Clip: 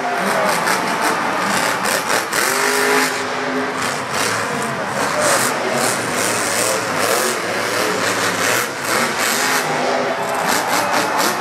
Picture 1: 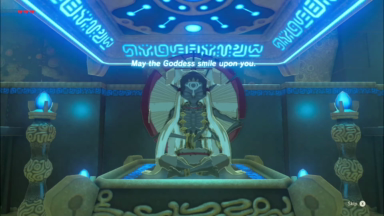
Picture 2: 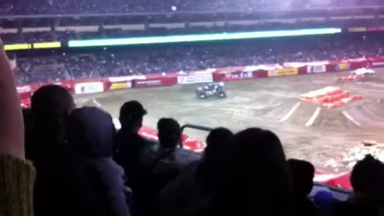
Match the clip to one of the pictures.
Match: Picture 2